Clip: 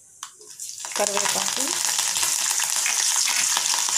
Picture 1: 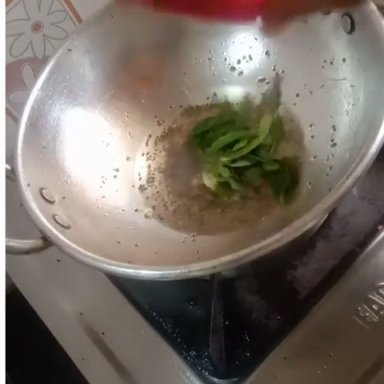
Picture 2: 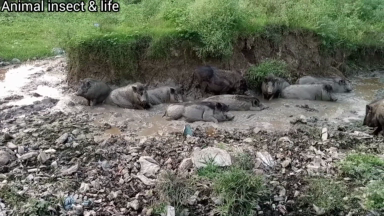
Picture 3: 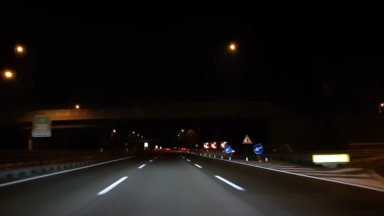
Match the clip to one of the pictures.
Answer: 1